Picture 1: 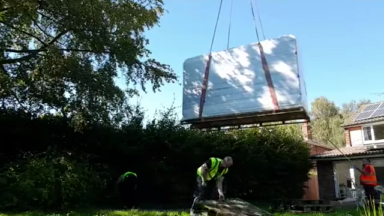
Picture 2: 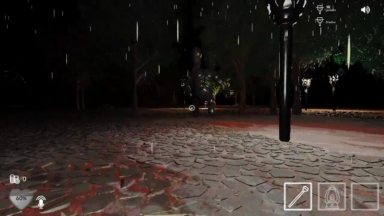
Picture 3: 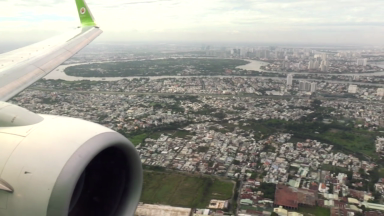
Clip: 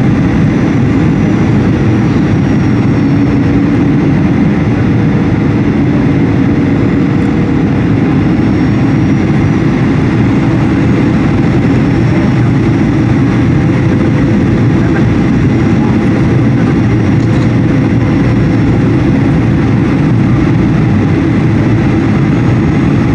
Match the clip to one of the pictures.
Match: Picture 3